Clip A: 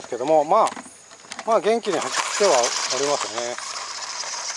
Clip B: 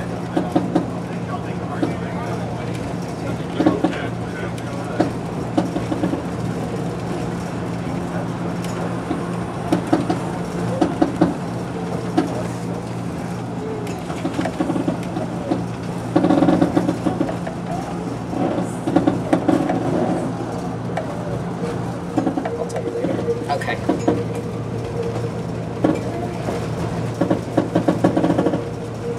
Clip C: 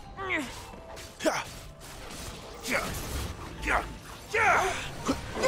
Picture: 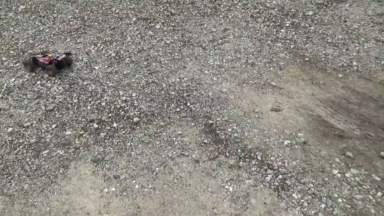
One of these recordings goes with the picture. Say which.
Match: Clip A